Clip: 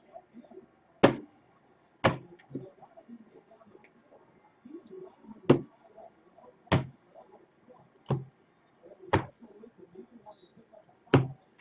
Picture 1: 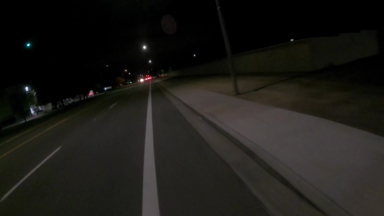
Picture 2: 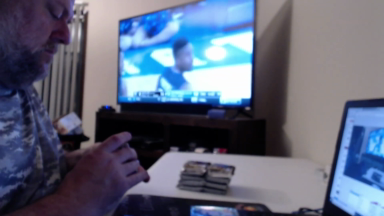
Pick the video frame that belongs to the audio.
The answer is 2